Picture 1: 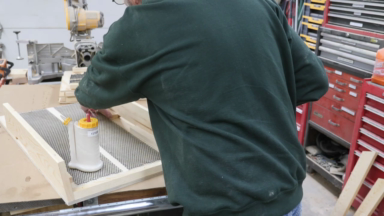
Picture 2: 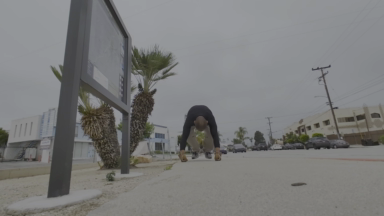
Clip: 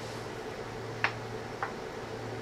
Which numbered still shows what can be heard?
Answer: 1